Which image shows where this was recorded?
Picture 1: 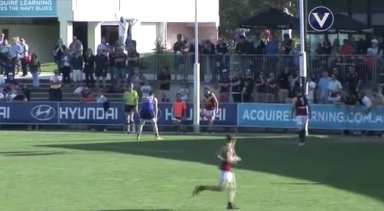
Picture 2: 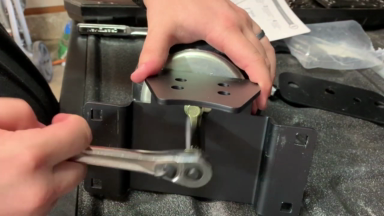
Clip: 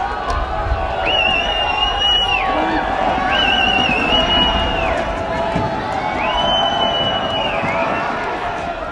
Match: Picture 1